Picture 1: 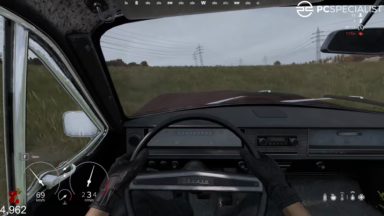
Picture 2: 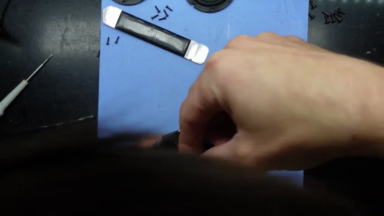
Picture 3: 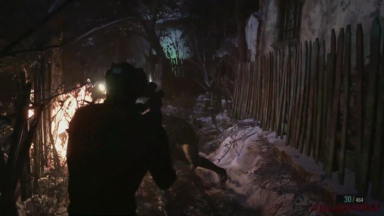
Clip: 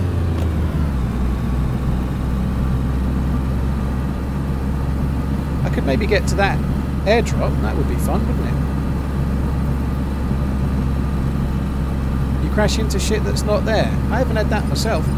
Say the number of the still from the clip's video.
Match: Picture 1